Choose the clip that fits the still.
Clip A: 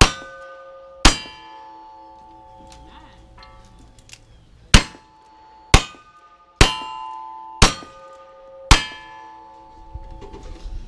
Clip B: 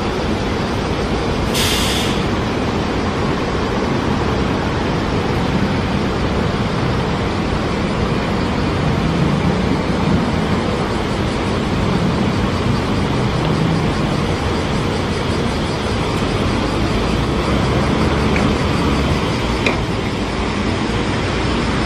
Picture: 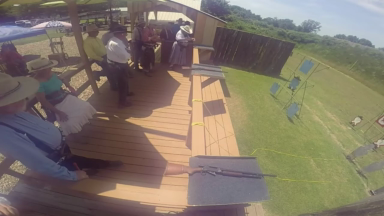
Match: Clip A